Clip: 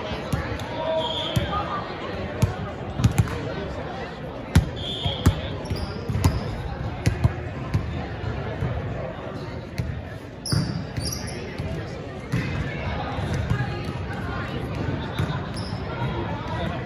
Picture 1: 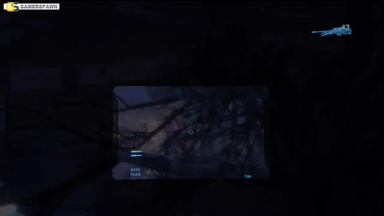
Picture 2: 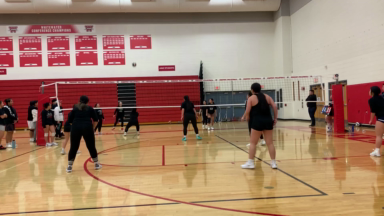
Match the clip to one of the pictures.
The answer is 2